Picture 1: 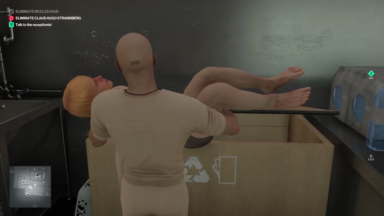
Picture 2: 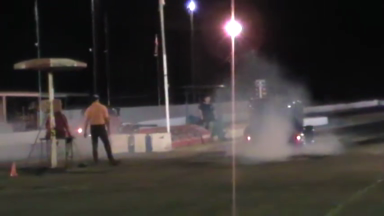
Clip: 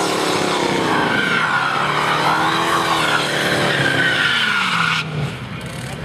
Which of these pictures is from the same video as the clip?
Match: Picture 2